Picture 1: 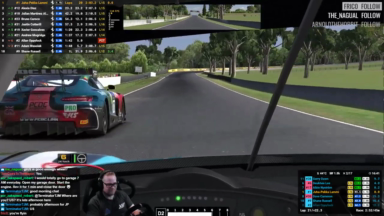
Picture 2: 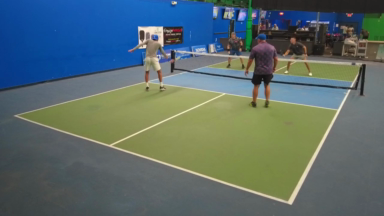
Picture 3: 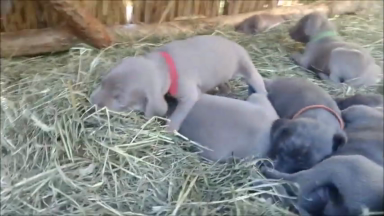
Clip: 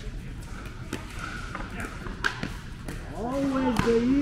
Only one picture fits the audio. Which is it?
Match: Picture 2